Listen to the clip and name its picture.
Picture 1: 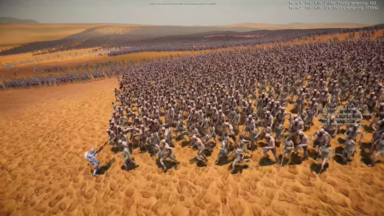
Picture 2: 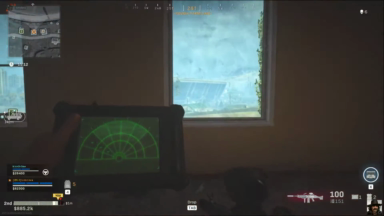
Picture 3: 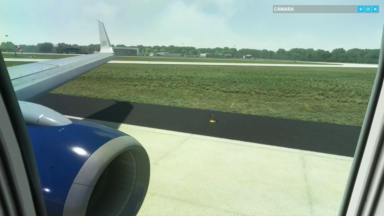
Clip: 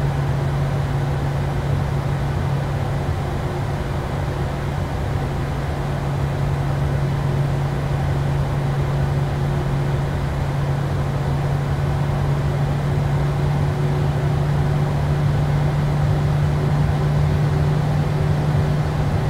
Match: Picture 3